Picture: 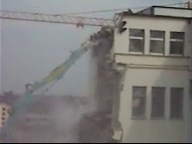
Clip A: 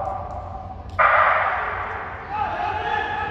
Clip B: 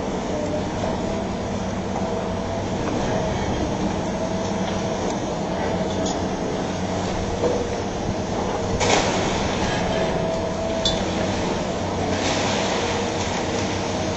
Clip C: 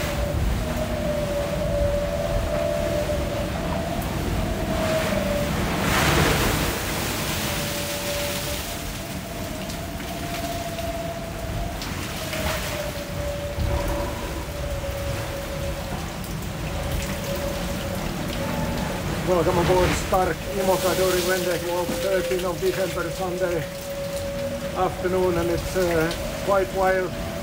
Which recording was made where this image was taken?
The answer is B